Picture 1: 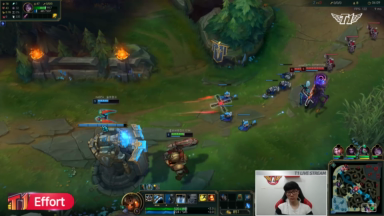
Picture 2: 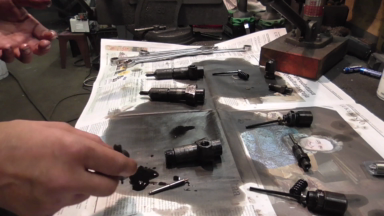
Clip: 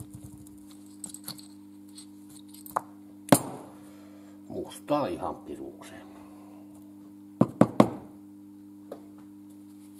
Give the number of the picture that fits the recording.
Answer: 2